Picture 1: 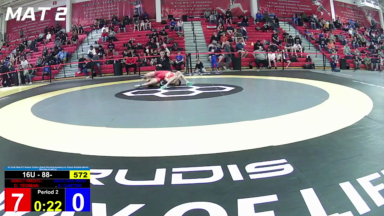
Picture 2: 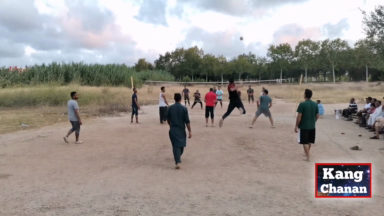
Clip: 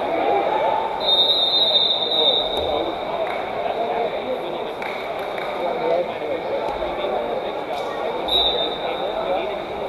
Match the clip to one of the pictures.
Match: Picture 1